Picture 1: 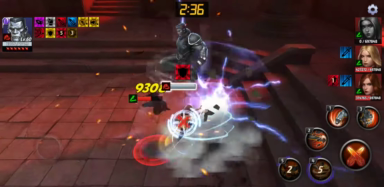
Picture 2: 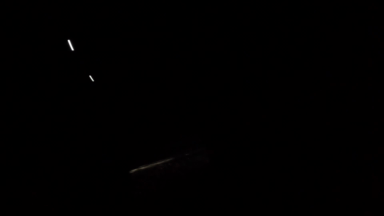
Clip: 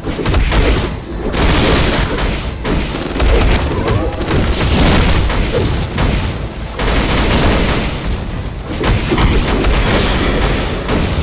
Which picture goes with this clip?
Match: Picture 1